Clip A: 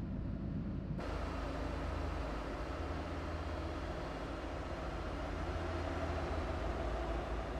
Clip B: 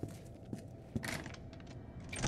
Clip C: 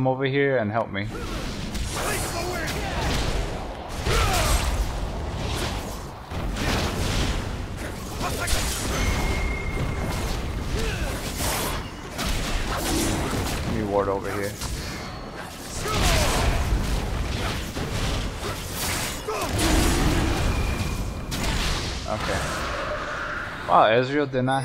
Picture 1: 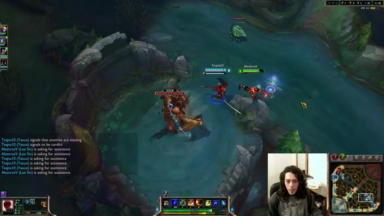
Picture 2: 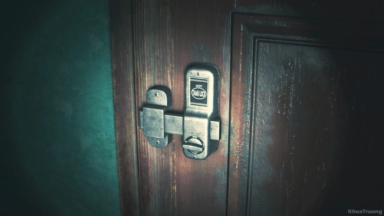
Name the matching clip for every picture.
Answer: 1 C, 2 B